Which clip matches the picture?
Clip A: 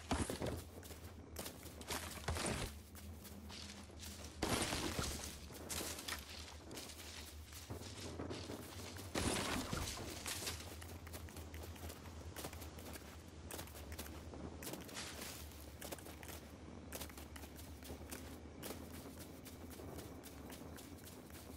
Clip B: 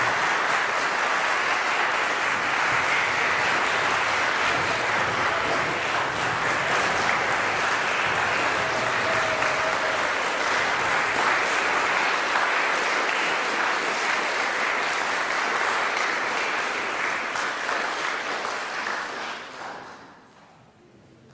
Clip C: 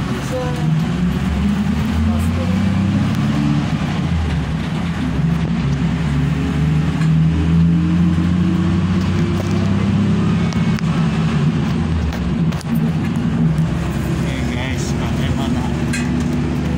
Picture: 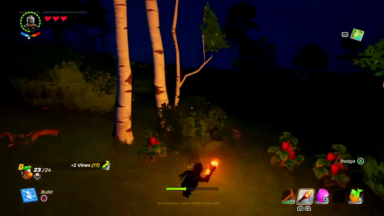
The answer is A